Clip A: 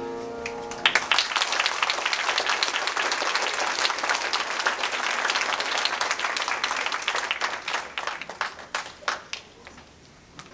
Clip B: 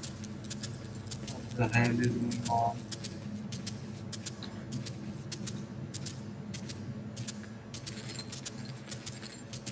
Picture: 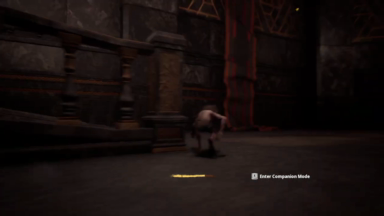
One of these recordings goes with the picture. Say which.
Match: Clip B